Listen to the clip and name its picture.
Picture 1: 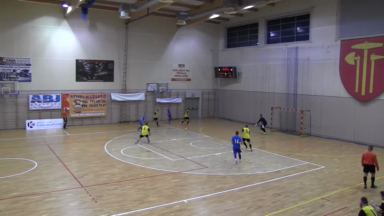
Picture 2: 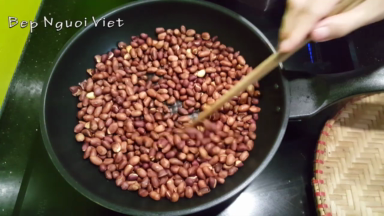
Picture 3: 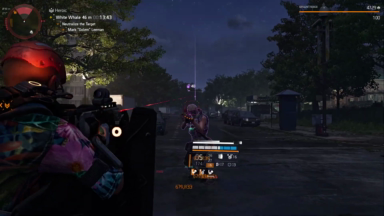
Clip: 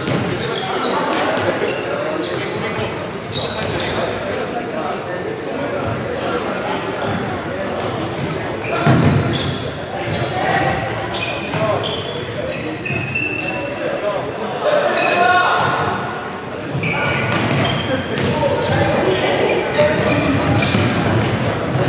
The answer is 1